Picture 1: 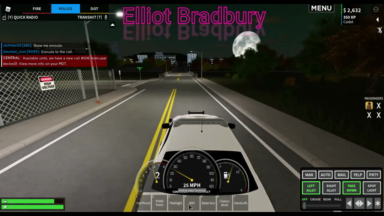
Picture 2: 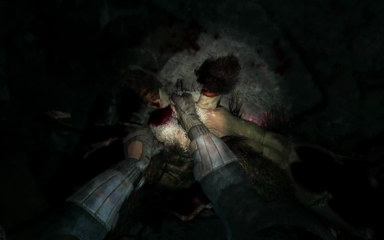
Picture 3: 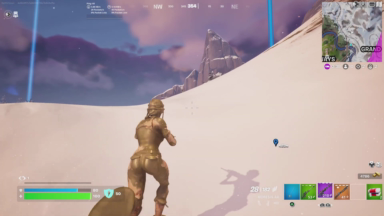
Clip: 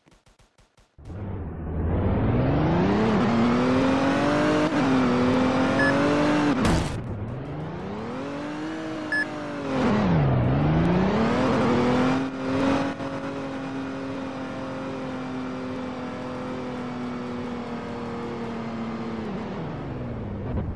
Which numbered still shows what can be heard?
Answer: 1